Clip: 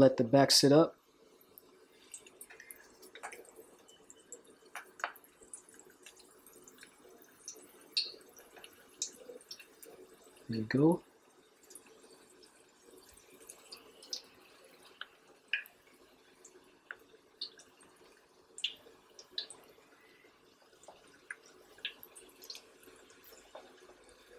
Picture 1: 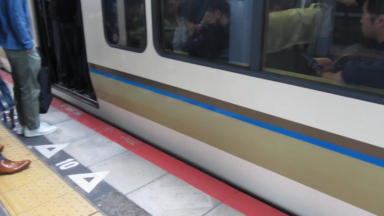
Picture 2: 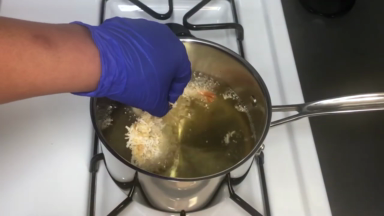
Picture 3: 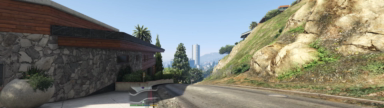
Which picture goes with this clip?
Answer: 2